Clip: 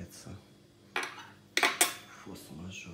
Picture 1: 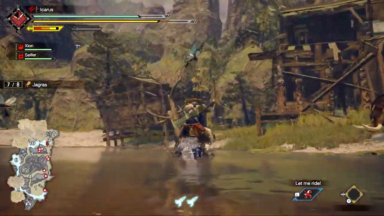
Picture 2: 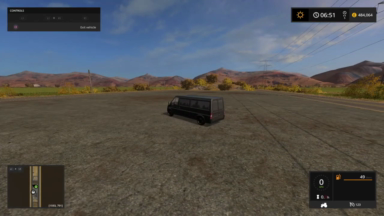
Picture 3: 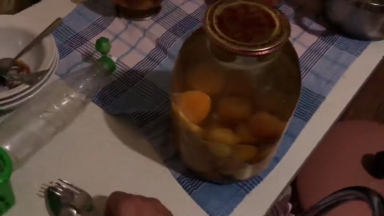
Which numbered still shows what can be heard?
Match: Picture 3